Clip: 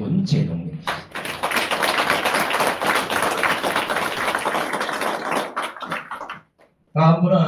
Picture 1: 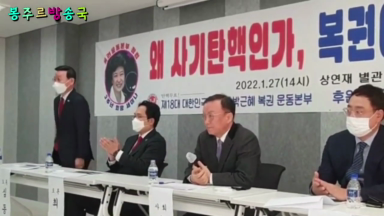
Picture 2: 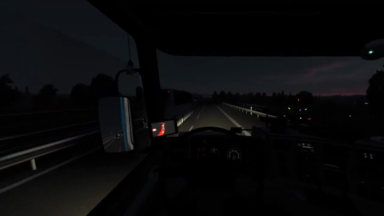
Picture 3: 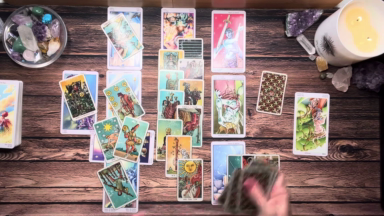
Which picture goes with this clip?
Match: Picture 1